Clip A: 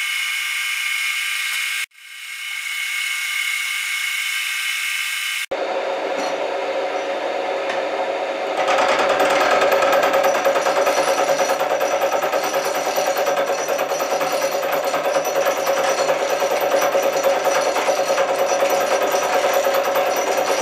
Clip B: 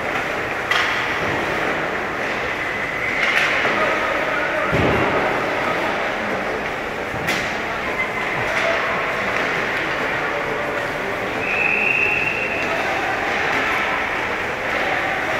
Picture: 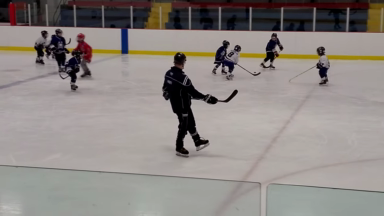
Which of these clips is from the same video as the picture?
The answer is B